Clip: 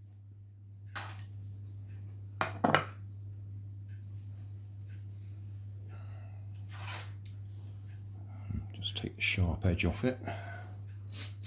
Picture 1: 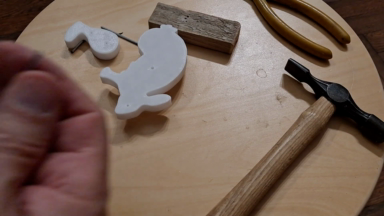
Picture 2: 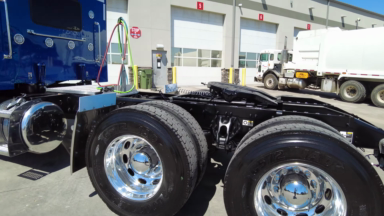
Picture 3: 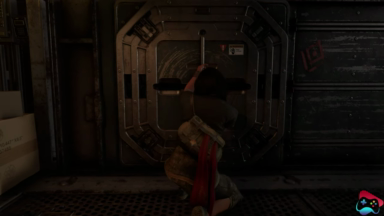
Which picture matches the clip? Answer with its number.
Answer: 1